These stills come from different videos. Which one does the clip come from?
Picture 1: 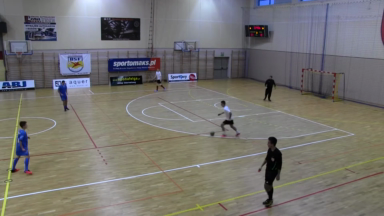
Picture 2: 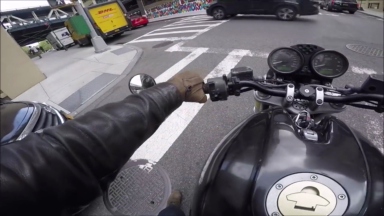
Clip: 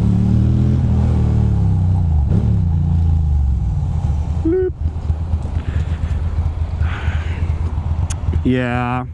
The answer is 2